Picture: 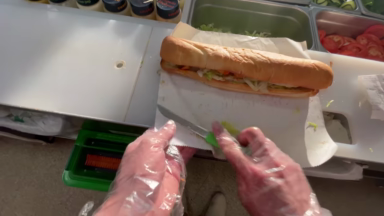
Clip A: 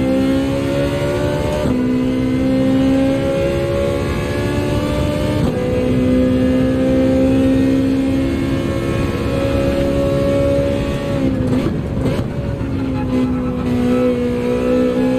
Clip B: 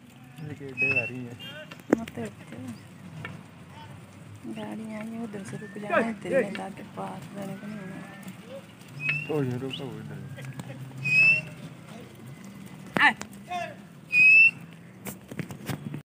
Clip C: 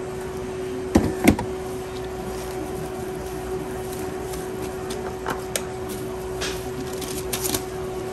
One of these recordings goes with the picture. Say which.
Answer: C